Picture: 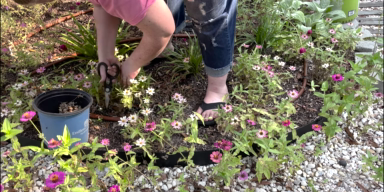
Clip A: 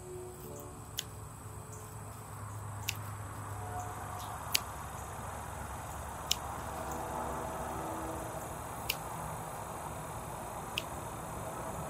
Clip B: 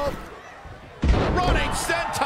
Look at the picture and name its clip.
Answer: A